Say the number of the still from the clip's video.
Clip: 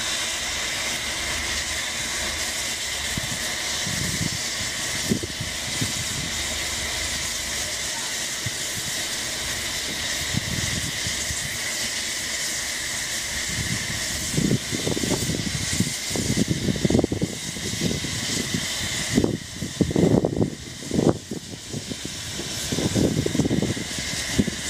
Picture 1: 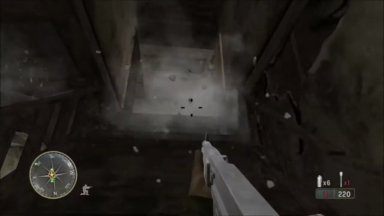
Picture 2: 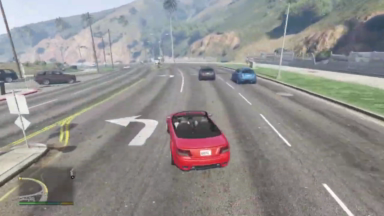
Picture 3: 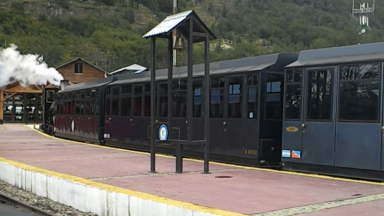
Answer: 3